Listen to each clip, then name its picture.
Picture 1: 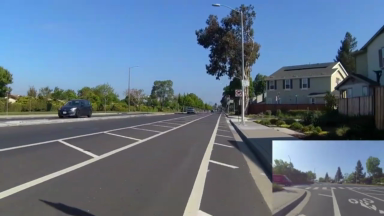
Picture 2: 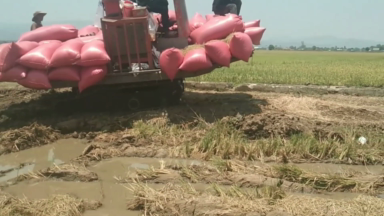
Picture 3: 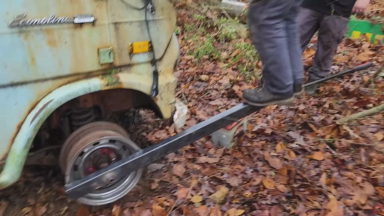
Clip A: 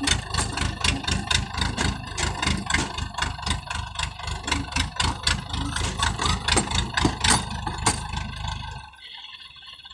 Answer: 2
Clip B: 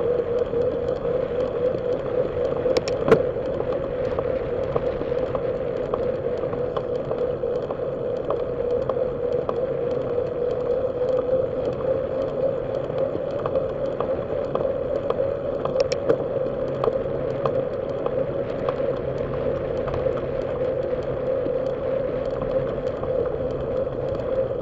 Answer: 1